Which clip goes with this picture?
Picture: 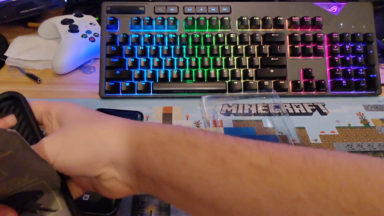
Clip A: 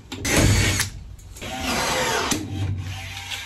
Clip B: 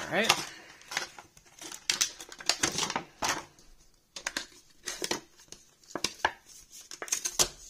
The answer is B